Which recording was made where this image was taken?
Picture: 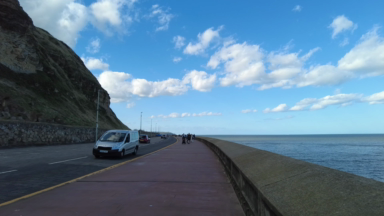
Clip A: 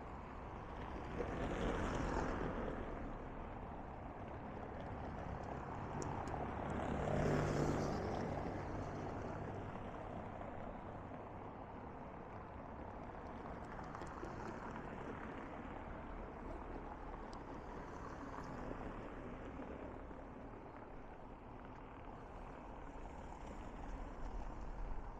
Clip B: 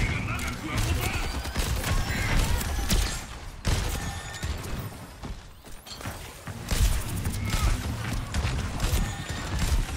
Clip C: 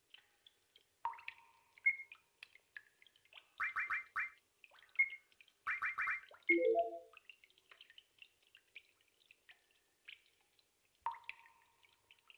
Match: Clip A